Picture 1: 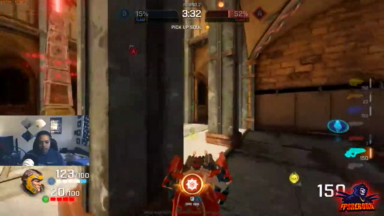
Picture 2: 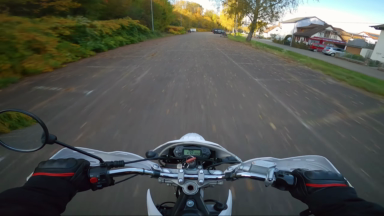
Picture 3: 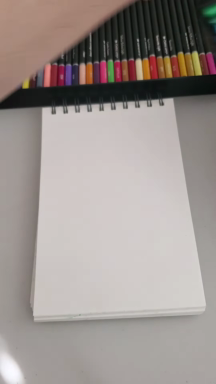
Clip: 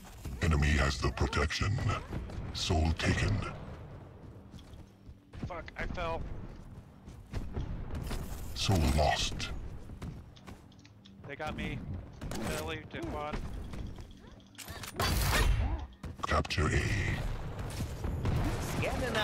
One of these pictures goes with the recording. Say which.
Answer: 1